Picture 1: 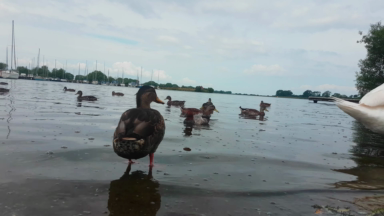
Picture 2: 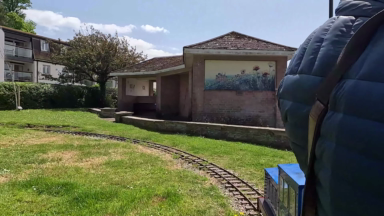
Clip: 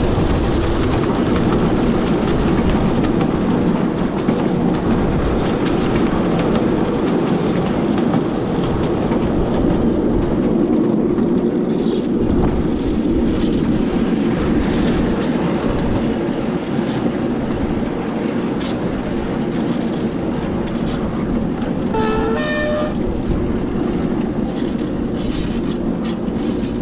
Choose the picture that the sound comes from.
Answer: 2